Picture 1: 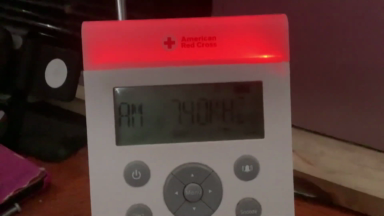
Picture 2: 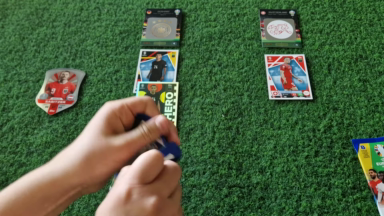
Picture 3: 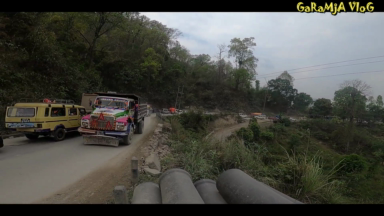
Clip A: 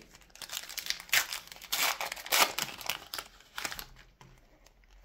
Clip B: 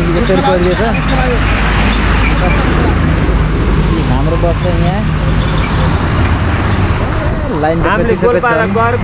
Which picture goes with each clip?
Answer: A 2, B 3